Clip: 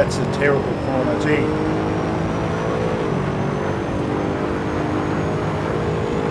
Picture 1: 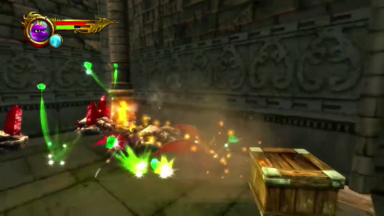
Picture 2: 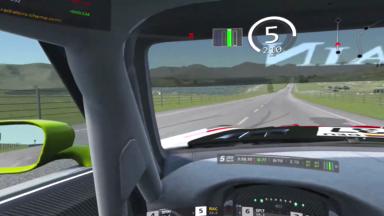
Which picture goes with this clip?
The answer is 2